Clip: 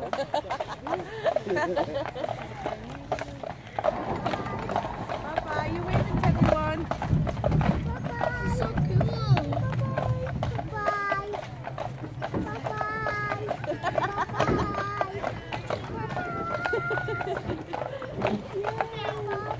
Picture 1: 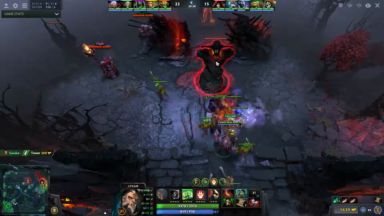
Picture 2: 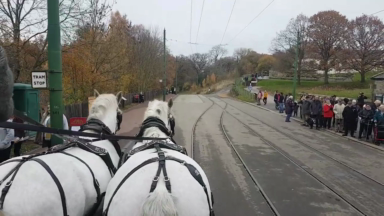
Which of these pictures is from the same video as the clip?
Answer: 2